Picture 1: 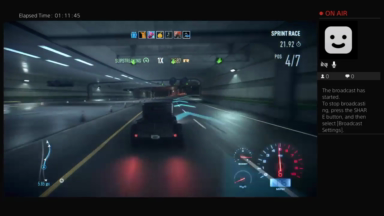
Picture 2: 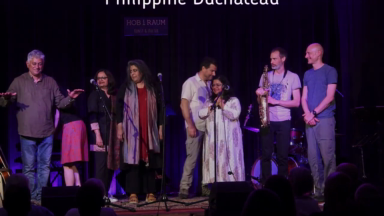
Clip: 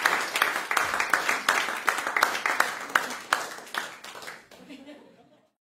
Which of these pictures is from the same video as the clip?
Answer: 2